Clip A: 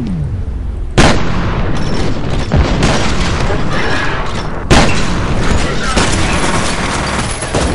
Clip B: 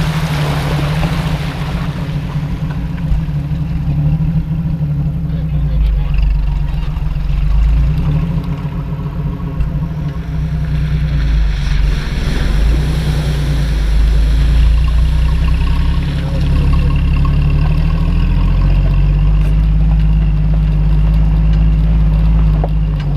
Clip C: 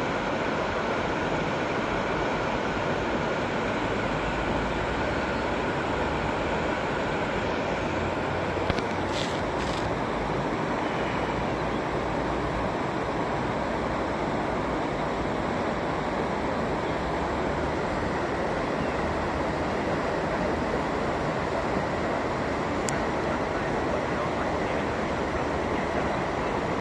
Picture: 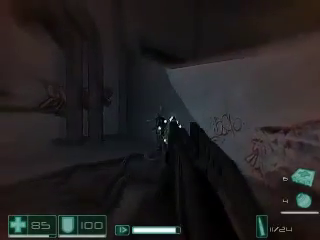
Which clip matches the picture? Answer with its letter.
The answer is A